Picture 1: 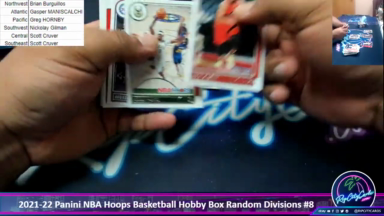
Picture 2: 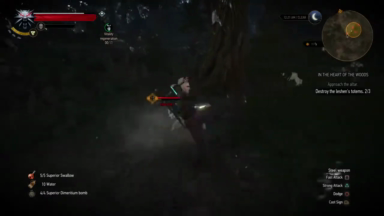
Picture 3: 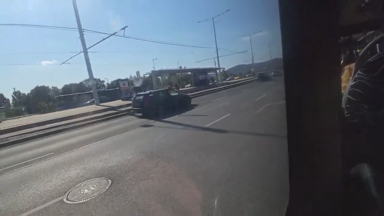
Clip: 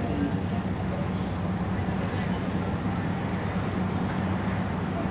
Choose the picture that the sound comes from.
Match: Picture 3